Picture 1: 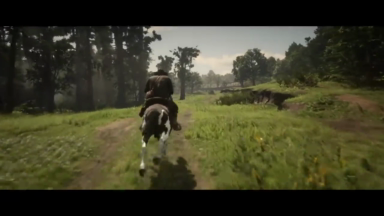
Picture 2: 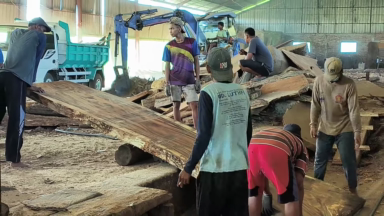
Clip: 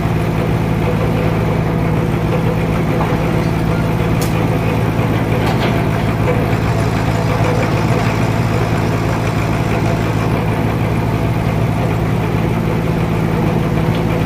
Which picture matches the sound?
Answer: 2